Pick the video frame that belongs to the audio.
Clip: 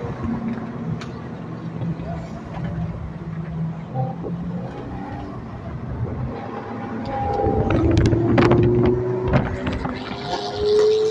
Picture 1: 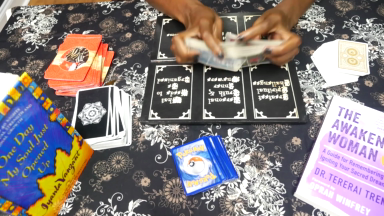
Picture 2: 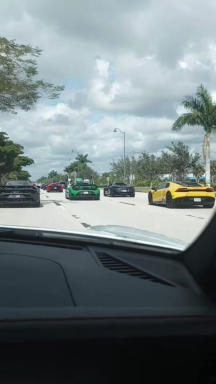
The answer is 2